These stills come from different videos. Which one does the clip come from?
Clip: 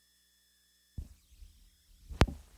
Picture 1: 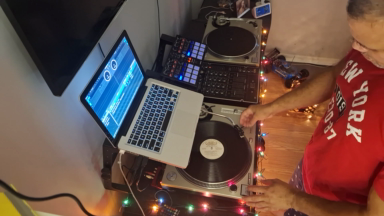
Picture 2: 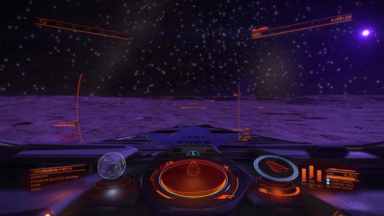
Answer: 1